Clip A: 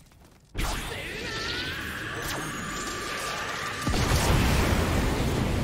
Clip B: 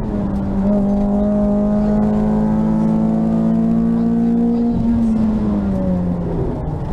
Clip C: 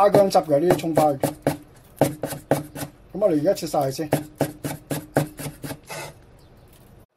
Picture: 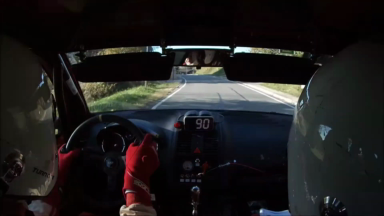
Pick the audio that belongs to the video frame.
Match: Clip B